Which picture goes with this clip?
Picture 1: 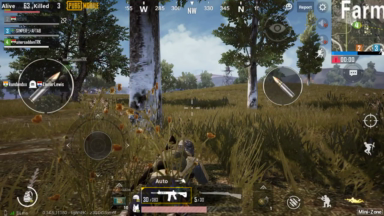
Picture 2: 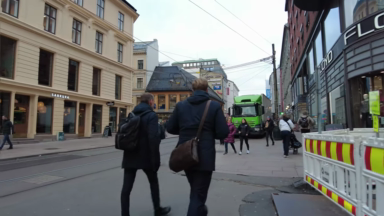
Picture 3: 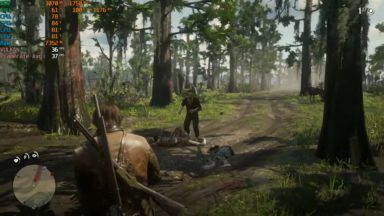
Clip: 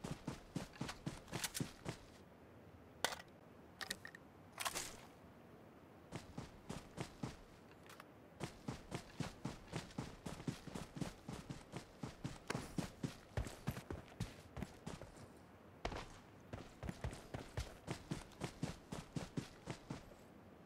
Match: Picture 1